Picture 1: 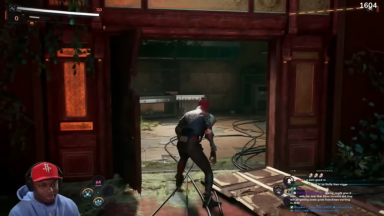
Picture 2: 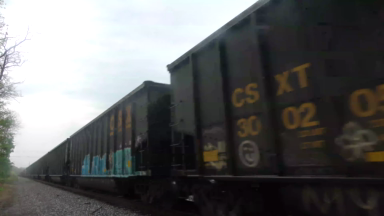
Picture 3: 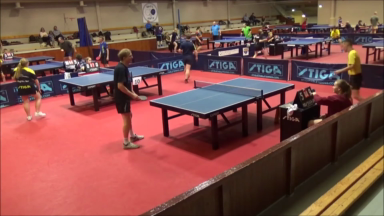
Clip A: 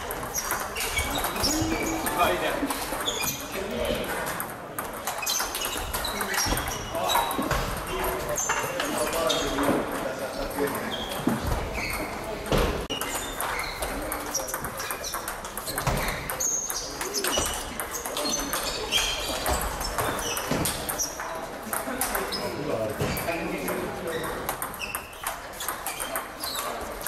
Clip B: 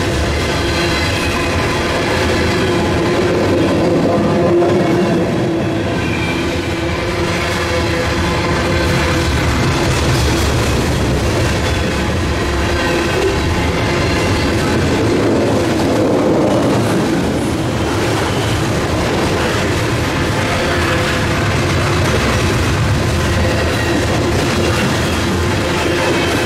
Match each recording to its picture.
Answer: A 3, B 2